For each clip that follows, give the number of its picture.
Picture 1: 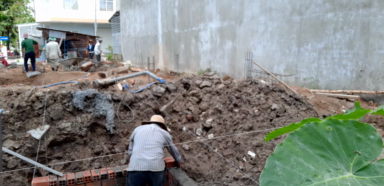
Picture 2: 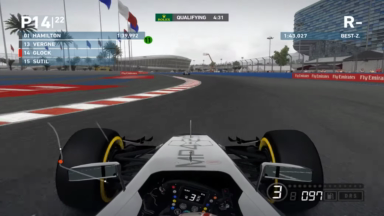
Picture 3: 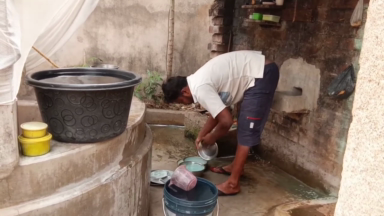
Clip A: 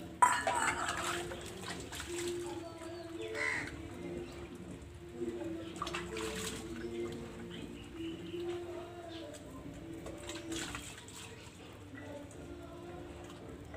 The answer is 3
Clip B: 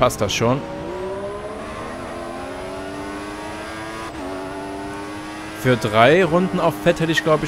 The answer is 2